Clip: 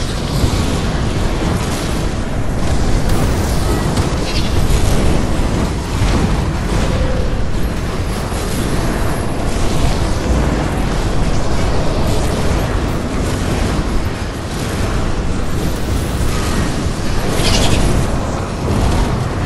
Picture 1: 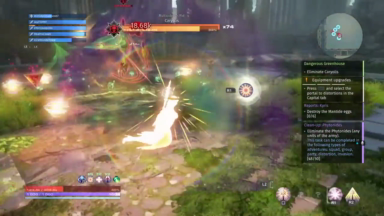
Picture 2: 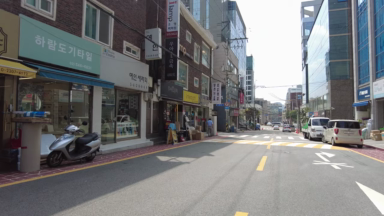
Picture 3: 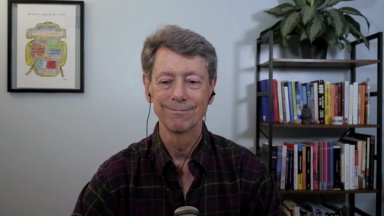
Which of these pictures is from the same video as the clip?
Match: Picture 1